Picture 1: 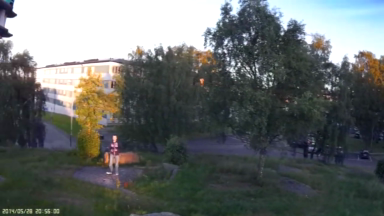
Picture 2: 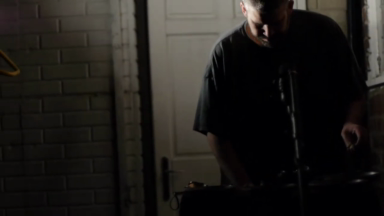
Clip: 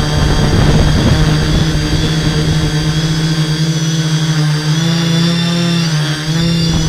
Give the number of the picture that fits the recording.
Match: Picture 1